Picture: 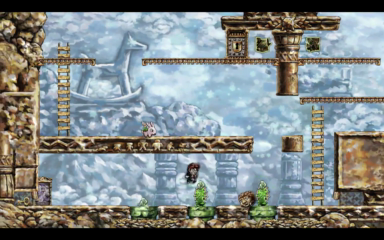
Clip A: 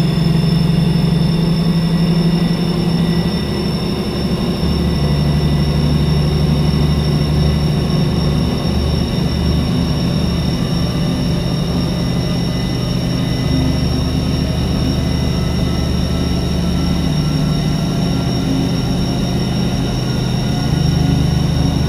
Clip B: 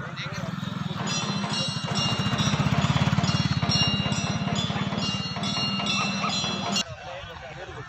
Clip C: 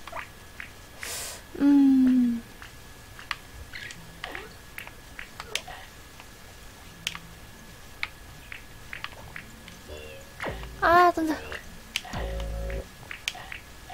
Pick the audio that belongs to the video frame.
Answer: C